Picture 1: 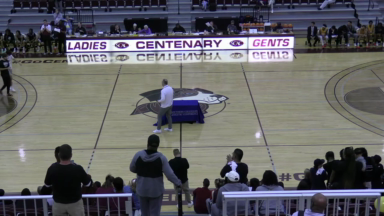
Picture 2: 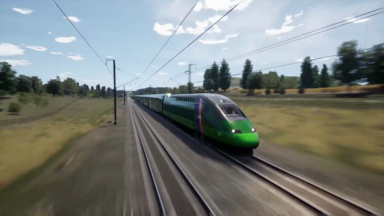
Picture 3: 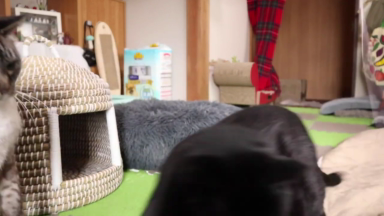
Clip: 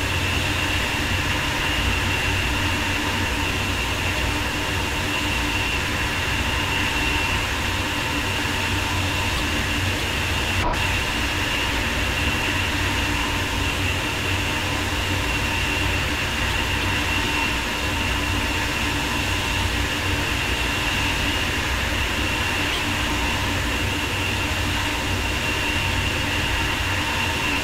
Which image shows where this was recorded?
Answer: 2